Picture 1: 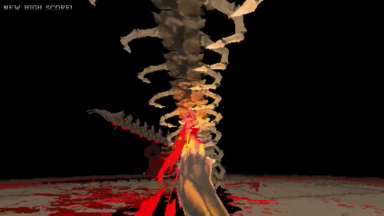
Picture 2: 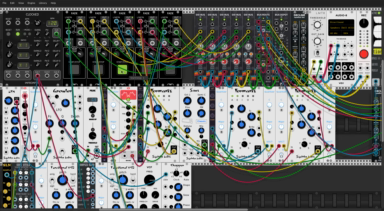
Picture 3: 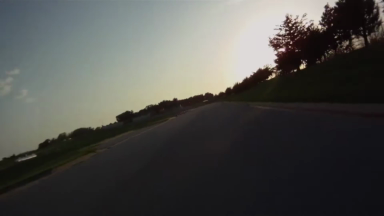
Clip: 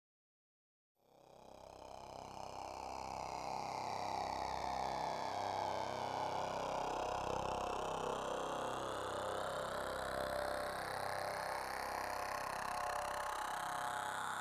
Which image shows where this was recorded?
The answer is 2